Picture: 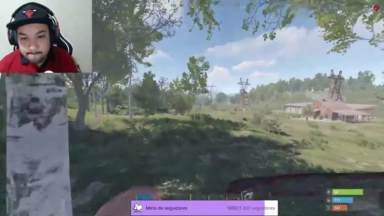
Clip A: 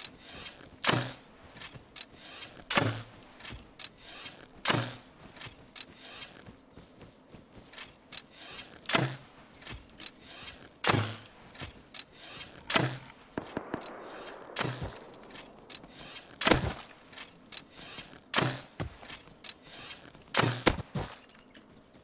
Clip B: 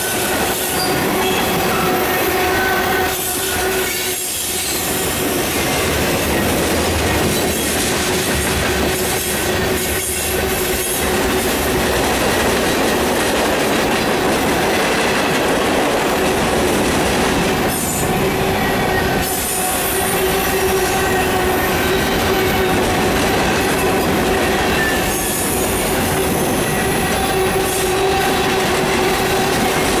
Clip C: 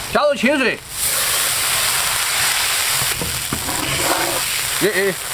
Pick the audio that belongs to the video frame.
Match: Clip A